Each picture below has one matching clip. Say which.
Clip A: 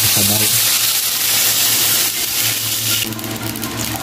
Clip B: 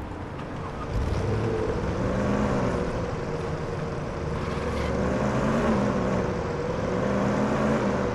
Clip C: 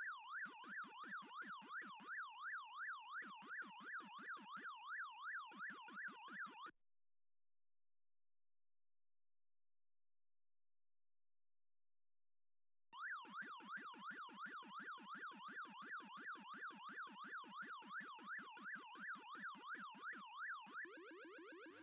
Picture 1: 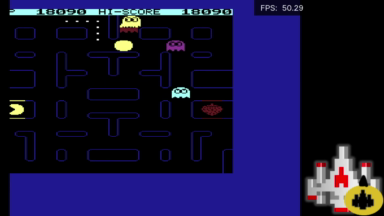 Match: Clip C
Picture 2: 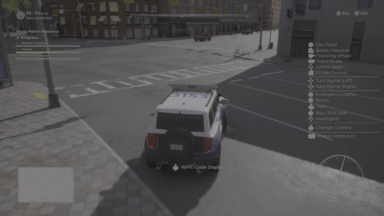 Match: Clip B